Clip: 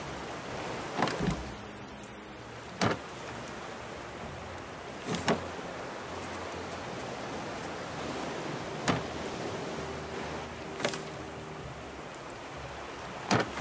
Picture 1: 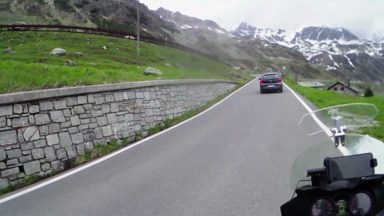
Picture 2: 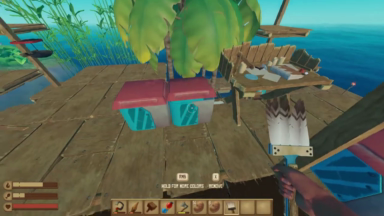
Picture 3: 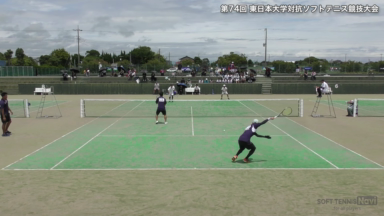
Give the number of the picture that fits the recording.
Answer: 2